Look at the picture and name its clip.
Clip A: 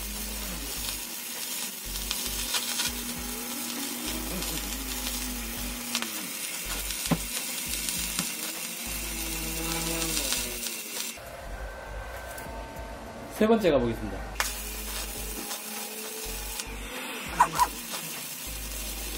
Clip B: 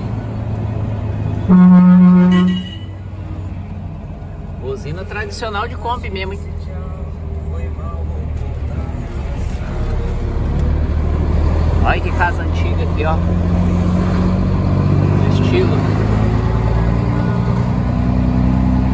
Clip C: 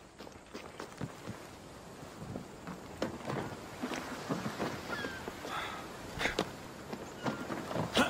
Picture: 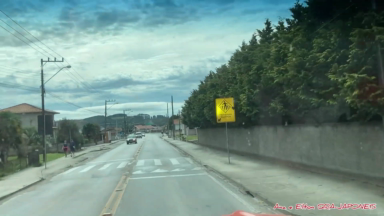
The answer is B